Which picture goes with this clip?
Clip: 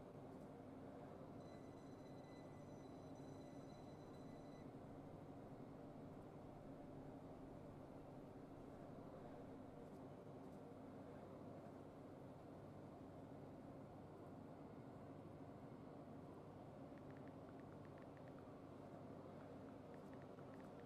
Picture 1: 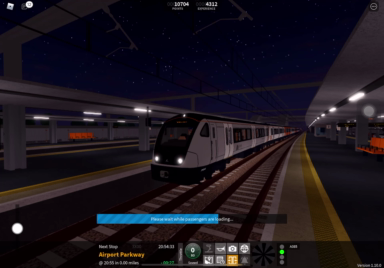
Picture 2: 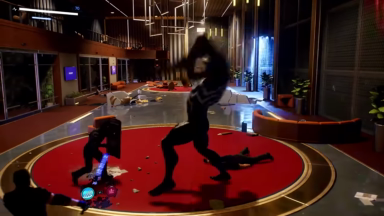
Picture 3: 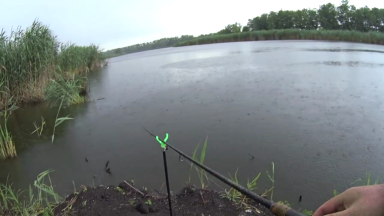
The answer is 1